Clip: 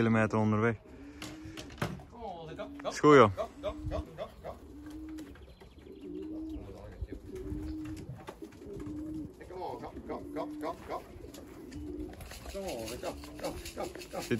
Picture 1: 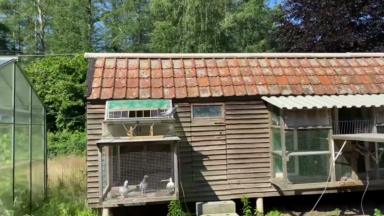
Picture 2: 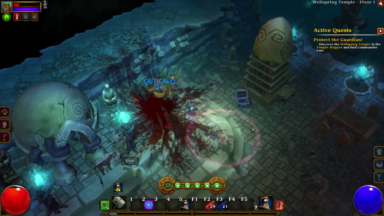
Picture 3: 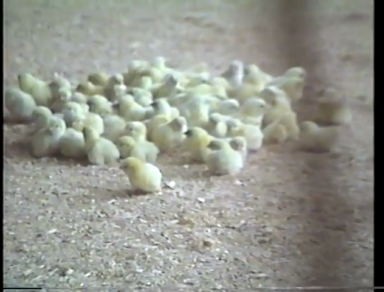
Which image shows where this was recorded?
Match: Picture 1